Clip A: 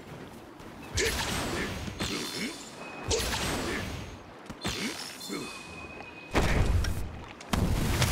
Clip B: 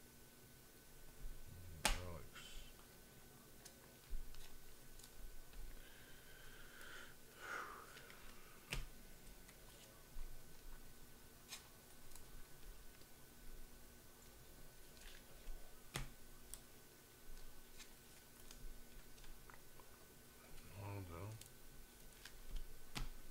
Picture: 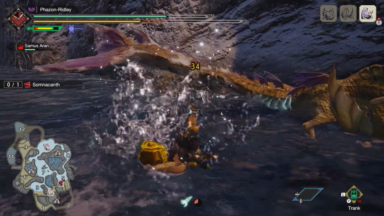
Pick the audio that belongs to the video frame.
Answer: A